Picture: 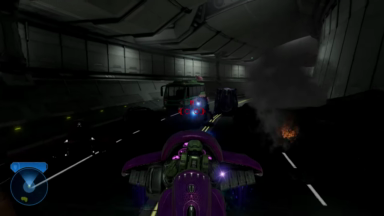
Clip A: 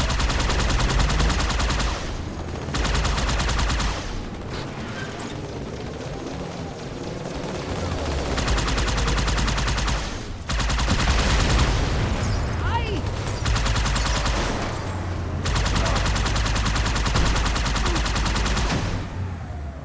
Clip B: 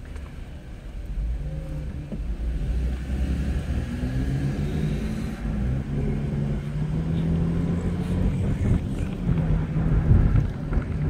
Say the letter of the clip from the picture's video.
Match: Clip A